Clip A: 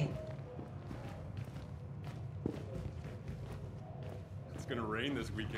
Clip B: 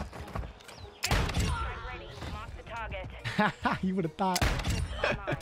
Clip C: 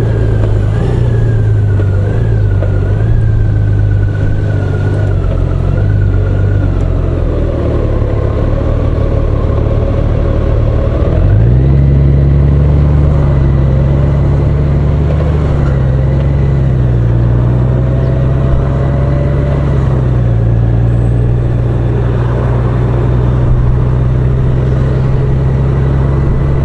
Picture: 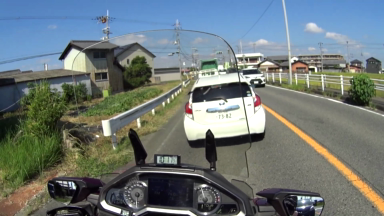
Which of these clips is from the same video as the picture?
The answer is C